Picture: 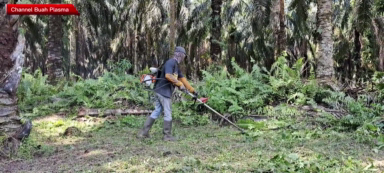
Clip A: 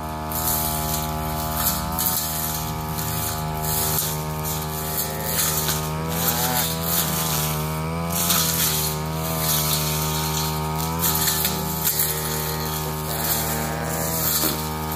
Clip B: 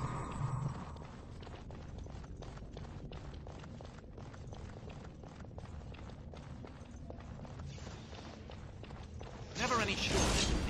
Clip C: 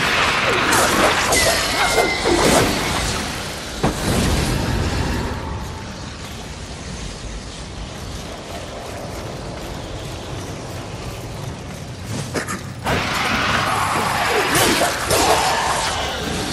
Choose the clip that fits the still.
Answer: A